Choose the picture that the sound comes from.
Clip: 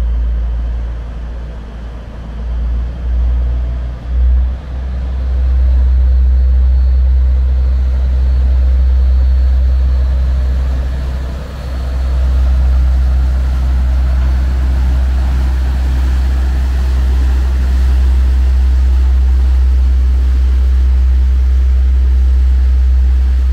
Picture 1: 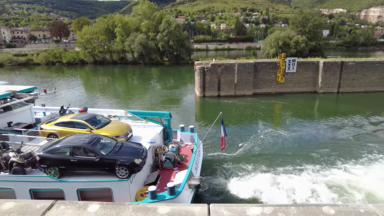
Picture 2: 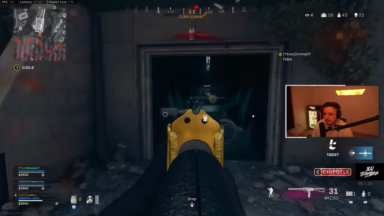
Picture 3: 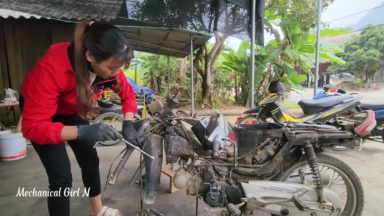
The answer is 1